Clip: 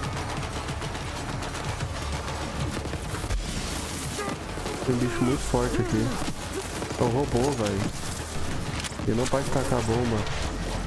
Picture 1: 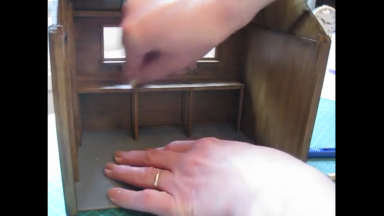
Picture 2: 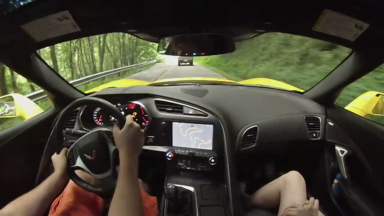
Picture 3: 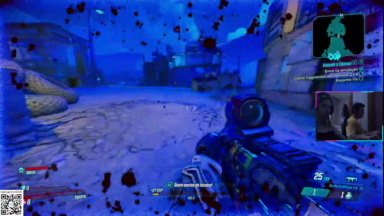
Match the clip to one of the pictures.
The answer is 3